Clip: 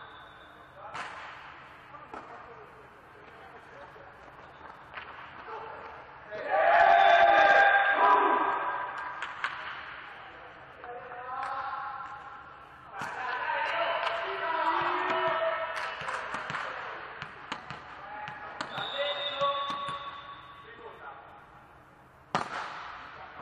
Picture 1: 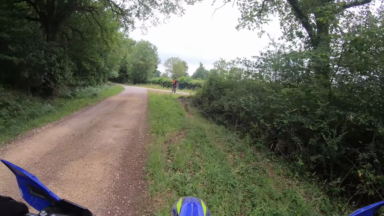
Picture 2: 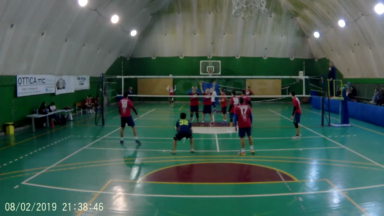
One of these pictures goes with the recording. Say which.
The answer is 2